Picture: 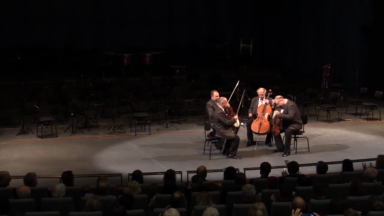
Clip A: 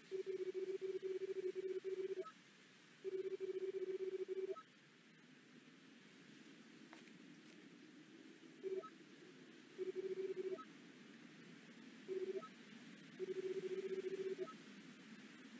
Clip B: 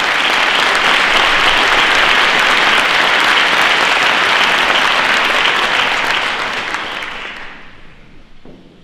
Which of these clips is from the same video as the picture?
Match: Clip B